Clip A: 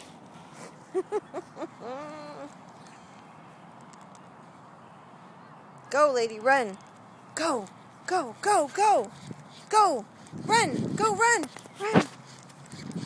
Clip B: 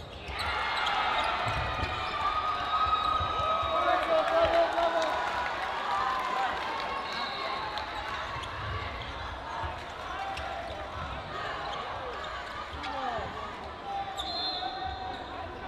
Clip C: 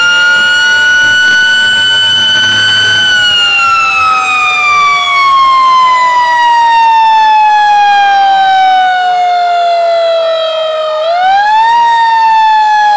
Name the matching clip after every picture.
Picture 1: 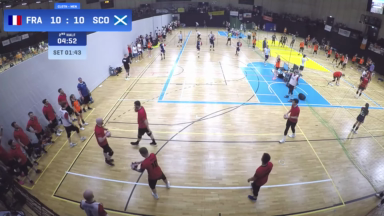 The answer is B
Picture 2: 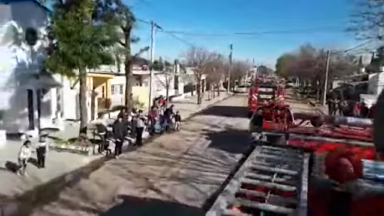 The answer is C